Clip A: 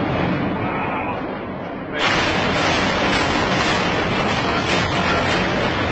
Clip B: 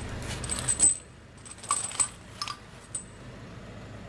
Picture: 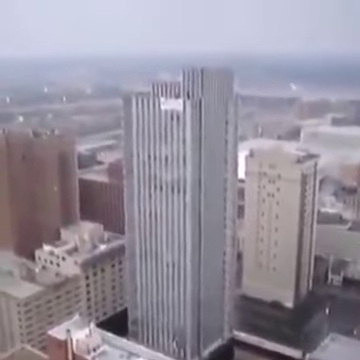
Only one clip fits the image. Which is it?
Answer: A